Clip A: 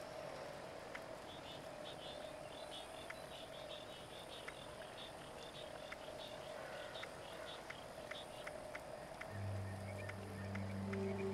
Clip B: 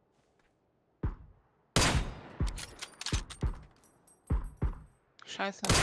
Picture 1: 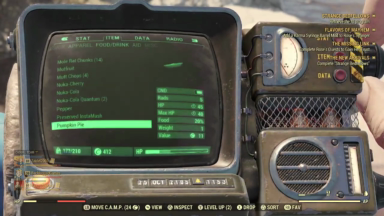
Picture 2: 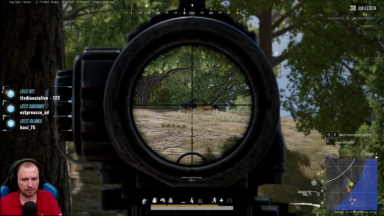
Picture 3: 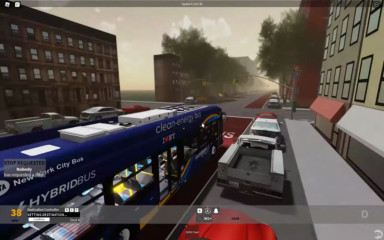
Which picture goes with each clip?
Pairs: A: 1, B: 2